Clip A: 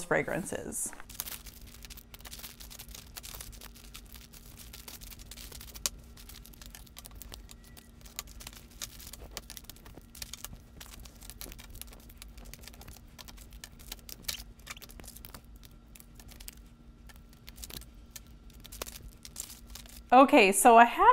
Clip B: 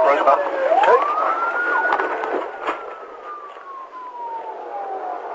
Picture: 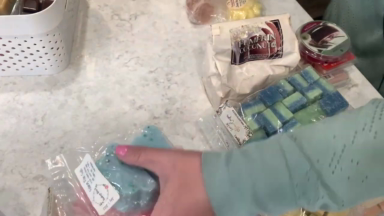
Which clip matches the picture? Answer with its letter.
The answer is A